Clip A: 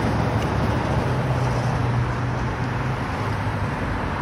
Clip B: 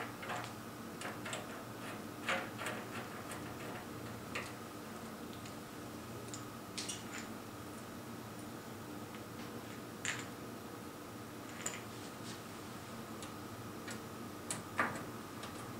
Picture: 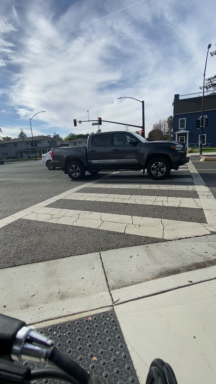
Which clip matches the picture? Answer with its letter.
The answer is A